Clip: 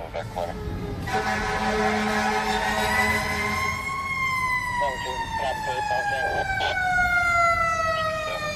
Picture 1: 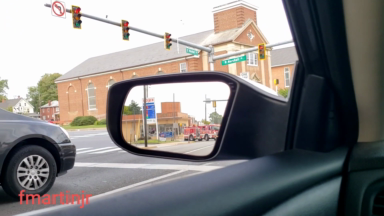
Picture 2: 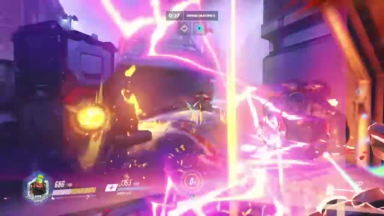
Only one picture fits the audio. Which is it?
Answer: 1